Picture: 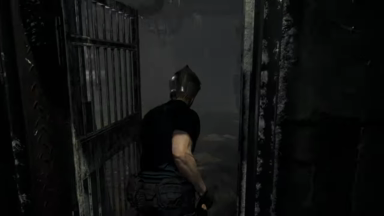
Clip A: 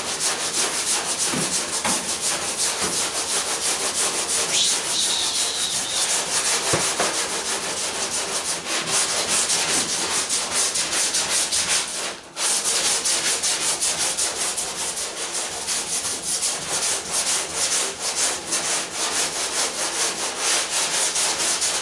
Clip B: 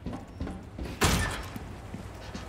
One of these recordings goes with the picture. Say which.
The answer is B